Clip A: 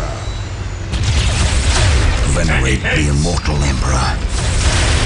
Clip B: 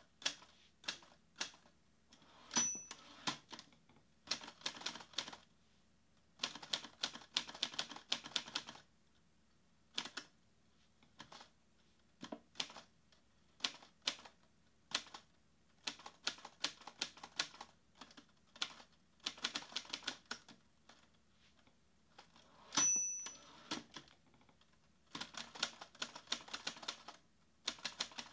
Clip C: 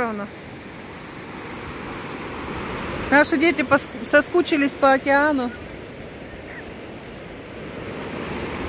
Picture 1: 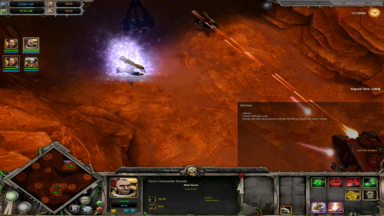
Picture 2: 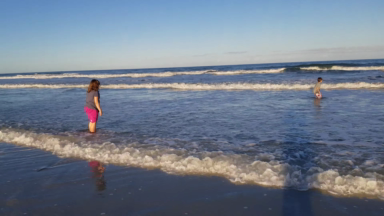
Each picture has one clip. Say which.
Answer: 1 A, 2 C